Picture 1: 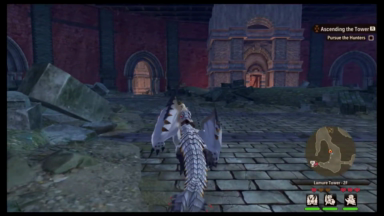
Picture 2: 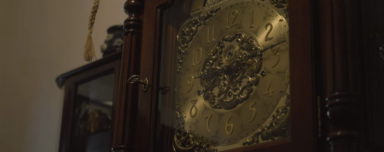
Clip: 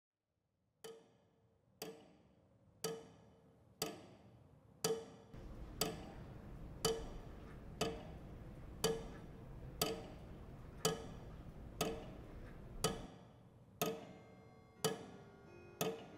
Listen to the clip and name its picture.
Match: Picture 2